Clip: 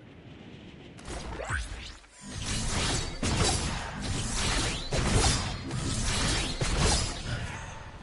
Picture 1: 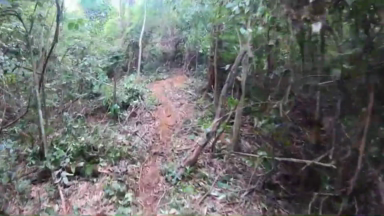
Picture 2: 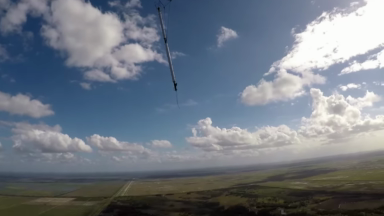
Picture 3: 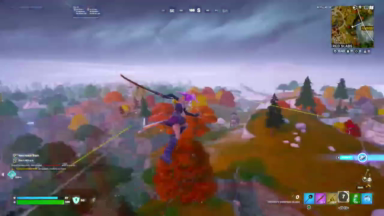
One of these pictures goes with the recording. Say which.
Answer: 3